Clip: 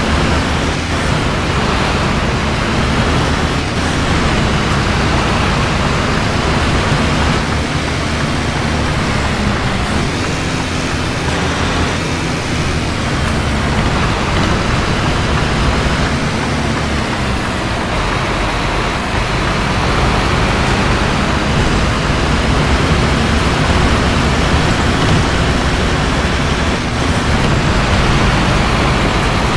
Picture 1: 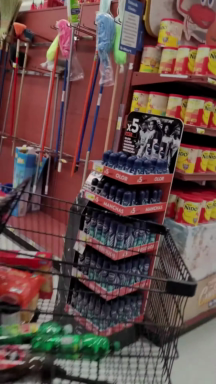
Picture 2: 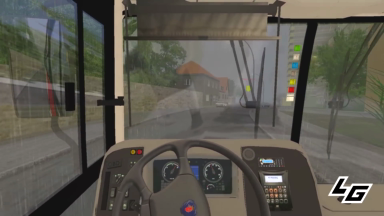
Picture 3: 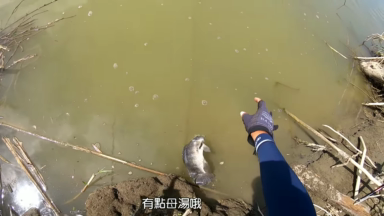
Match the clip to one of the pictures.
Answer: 2